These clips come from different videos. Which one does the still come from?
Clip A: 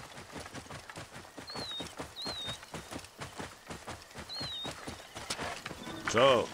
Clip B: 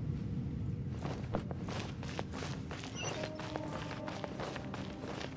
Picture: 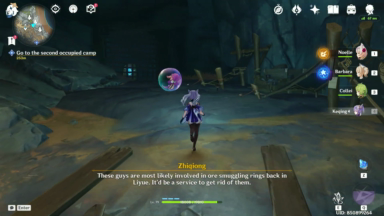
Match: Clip B